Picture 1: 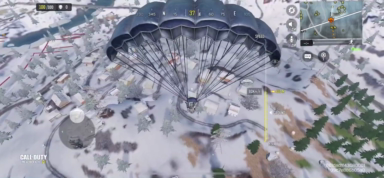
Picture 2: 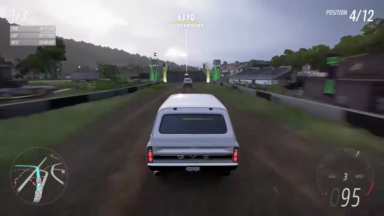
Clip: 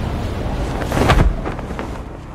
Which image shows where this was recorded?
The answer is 1